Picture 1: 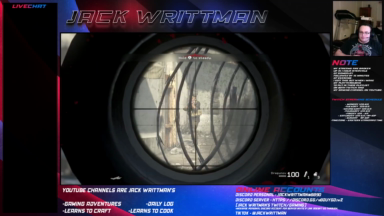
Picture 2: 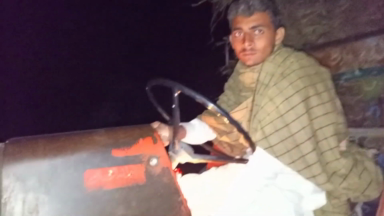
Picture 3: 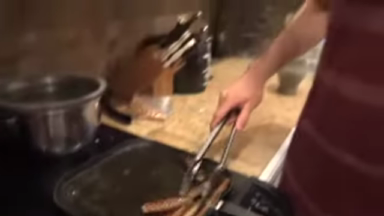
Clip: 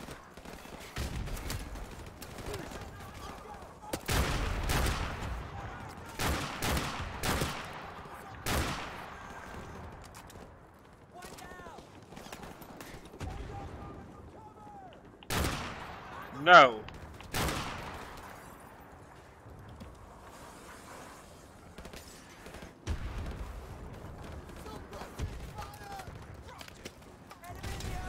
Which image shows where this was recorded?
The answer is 1